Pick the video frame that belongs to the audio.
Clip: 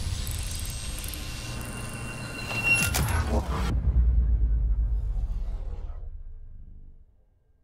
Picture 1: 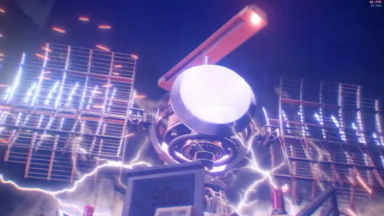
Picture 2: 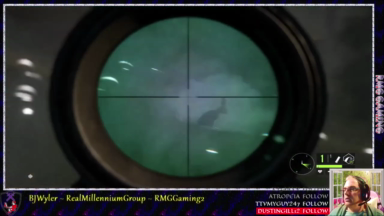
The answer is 1